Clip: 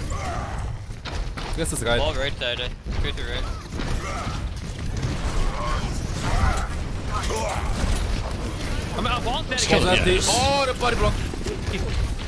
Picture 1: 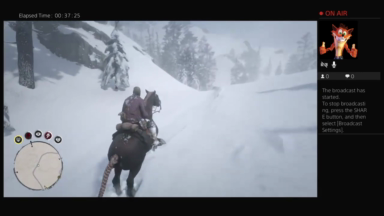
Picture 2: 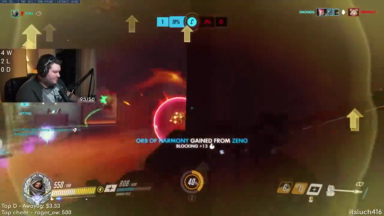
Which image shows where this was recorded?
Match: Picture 2